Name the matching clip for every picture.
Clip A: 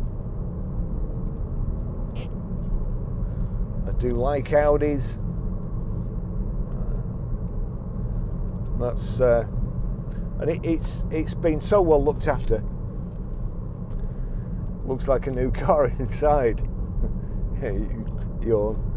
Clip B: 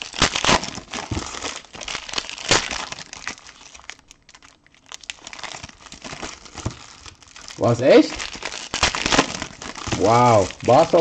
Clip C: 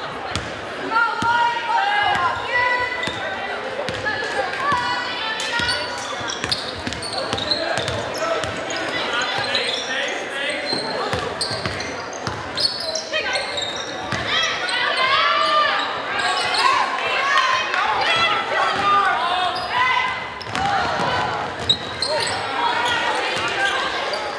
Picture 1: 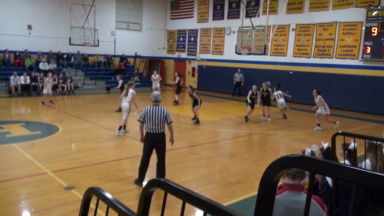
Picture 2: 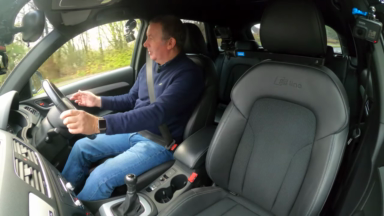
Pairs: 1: C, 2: A